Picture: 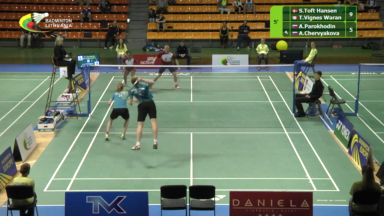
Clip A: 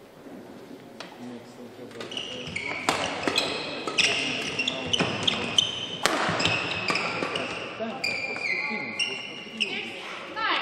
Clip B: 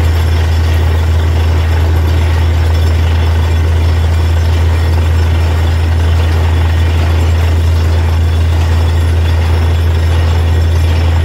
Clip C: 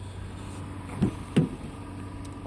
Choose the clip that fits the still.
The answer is A